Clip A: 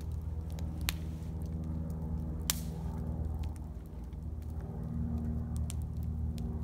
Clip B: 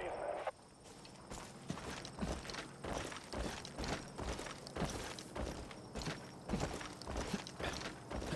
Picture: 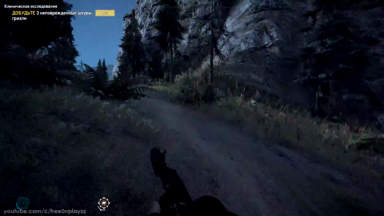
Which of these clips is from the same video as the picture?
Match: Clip B